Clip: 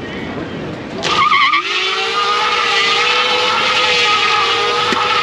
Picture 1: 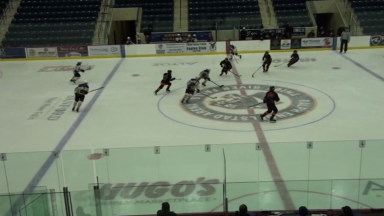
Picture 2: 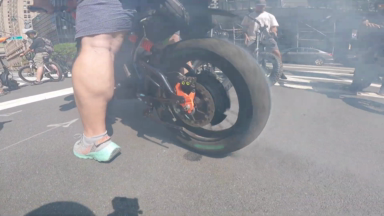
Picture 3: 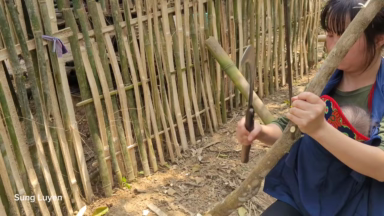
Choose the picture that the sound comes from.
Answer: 2